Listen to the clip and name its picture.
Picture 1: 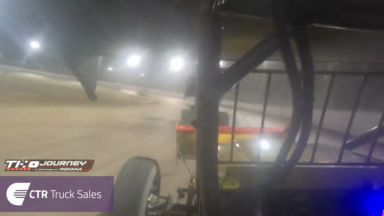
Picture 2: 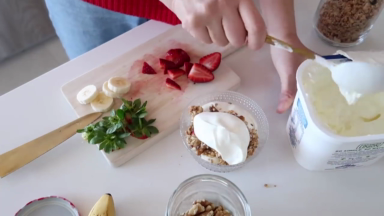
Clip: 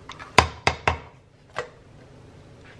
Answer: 2